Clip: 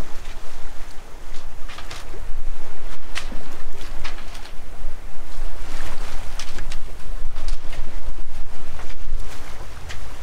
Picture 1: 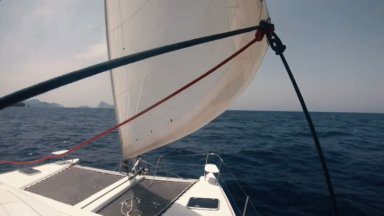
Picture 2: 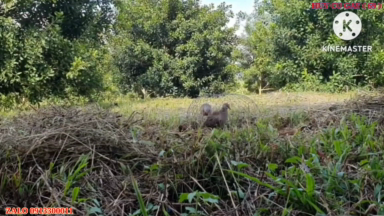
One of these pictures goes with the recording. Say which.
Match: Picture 1